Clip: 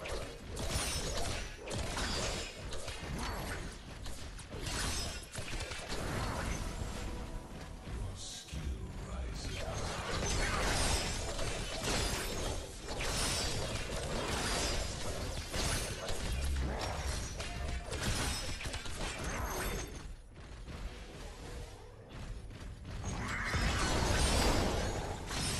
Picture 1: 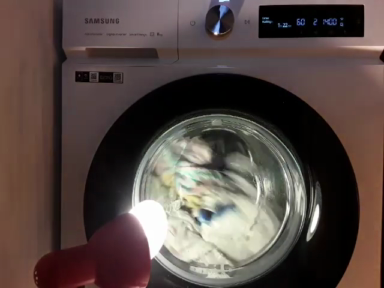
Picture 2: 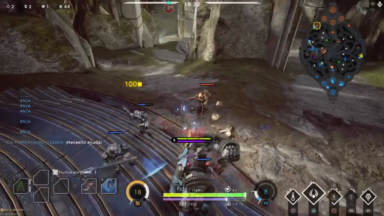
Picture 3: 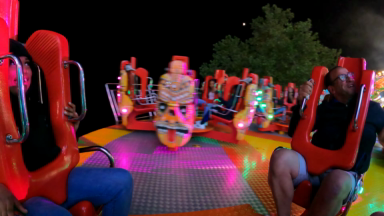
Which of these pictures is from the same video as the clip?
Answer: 2